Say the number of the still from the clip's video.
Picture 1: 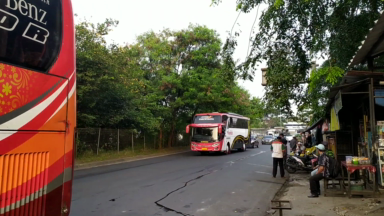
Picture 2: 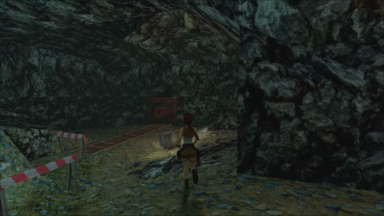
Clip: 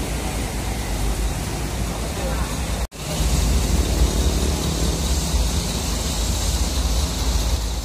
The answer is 1